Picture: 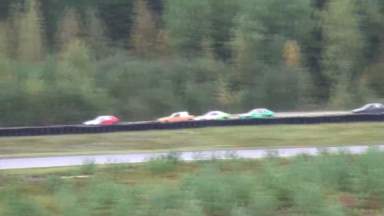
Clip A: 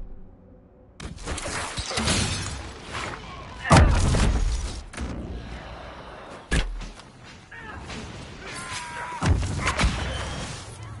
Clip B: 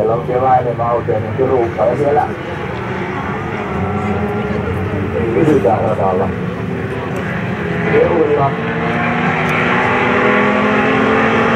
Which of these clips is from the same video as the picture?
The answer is B